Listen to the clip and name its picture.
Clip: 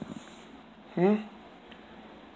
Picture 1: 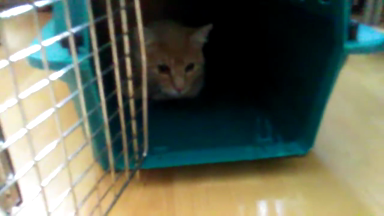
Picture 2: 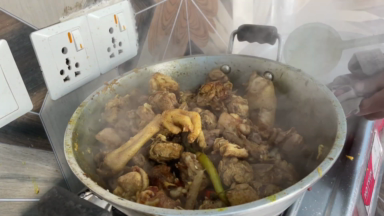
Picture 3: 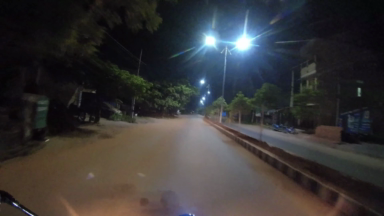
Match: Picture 1